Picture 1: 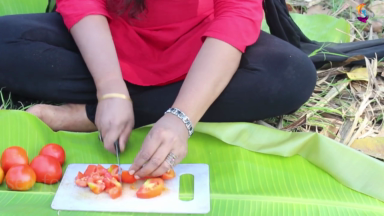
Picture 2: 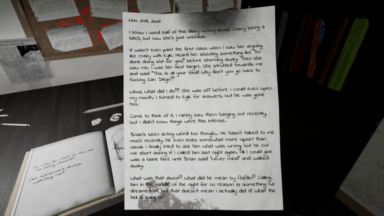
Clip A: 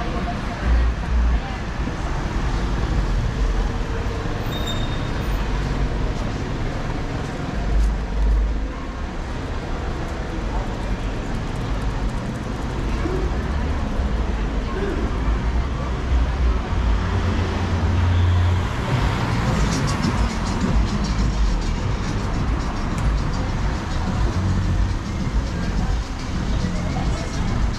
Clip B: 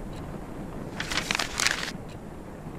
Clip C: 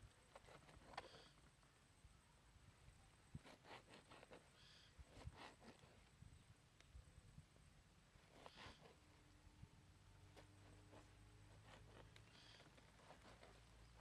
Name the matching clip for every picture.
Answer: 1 C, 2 B